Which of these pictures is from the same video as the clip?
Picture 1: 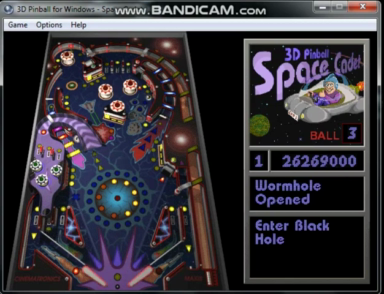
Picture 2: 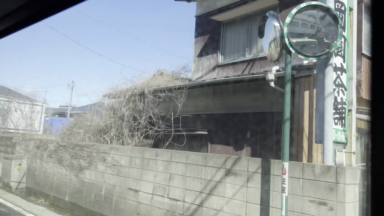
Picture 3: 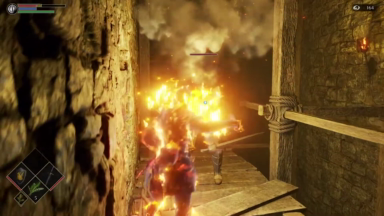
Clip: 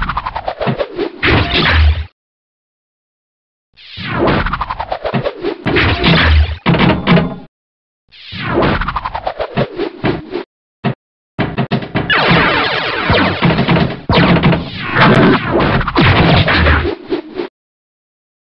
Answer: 1